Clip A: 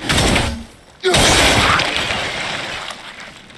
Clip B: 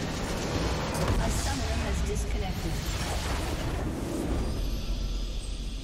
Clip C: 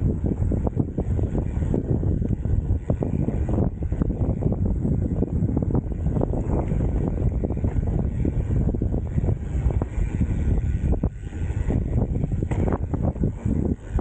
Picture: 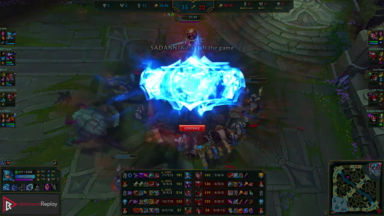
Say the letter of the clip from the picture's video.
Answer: B